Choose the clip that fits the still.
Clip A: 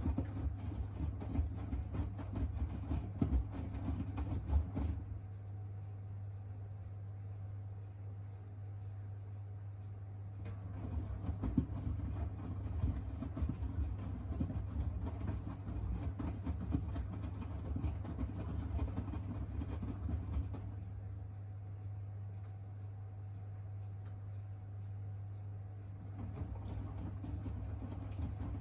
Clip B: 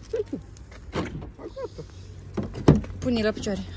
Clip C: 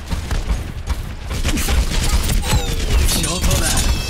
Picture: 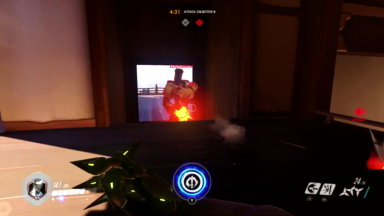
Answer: C